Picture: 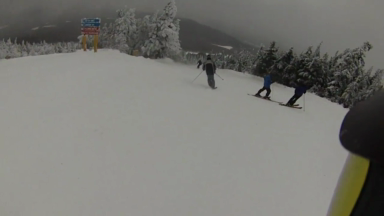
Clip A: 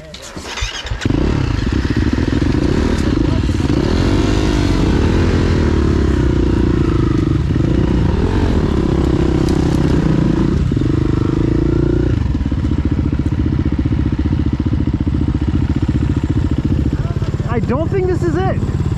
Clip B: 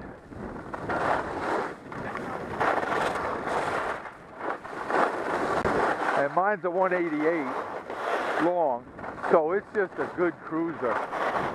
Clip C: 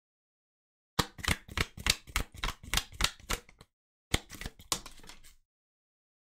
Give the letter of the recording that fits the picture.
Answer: B